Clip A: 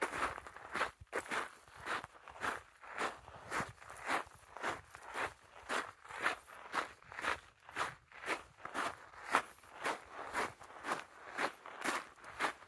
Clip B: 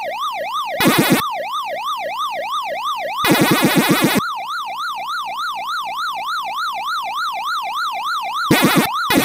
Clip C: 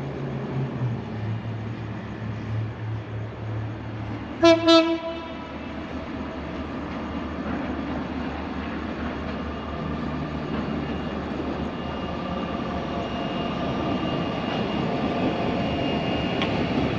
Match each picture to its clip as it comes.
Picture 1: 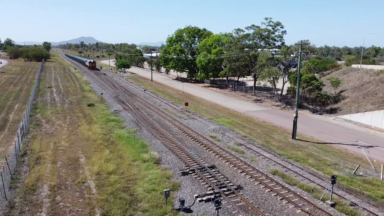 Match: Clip C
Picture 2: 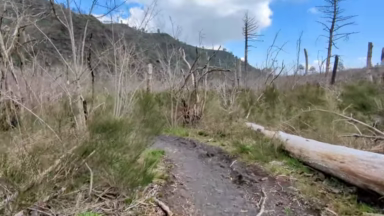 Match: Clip A